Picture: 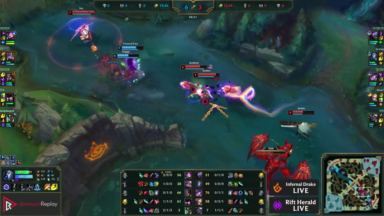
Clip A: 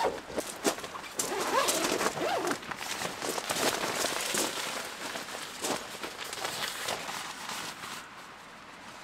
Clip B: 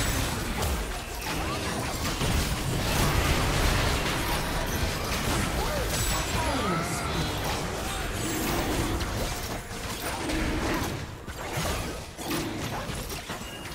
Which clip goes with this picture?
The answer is B